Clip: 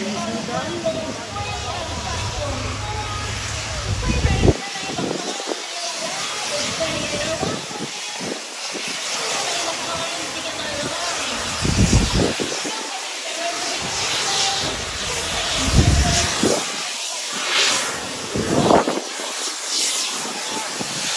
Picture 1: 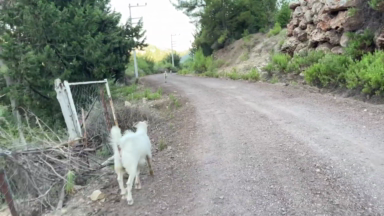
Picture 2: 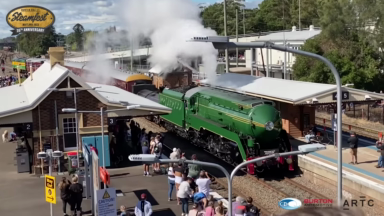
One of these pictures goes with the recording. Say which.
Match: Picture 2